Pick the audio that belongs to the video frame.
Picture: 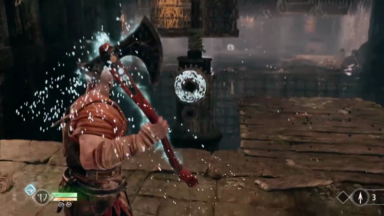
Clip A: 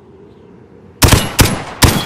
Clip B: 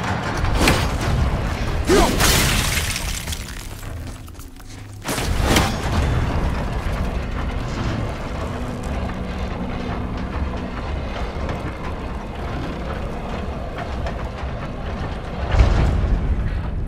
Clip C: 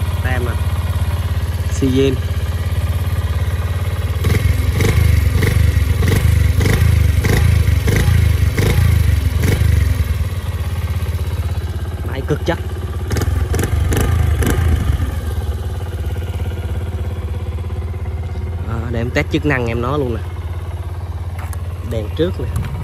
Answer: B